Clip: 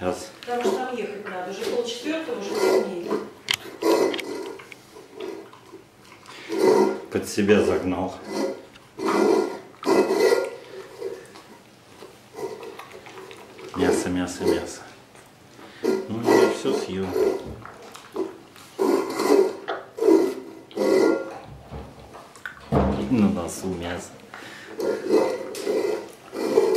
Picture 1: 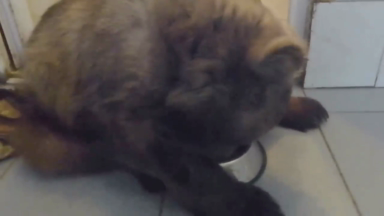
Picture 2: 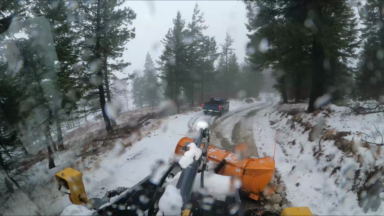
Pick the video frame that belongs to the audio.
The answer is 1